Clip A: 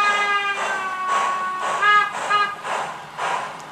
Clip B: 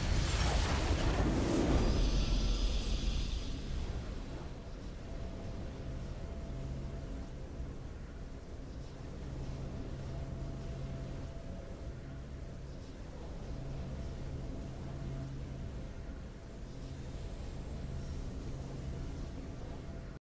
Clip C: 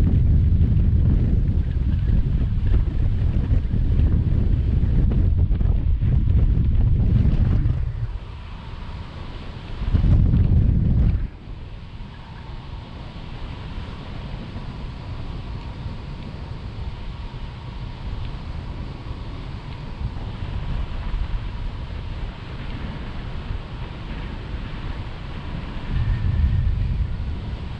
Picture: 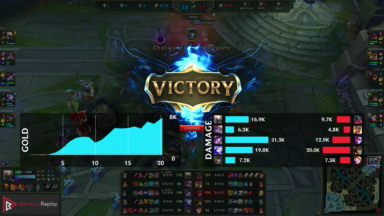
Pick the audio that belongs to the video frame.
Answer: B